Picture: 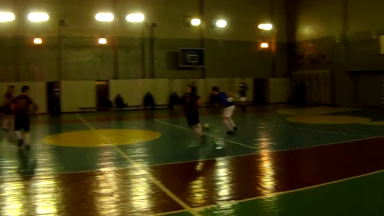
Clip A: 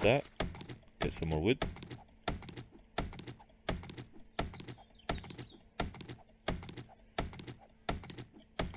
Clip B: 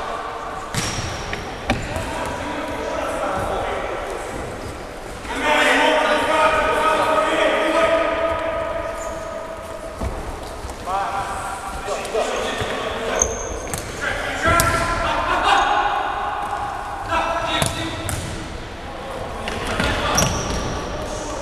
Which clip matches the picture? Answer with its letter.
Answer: B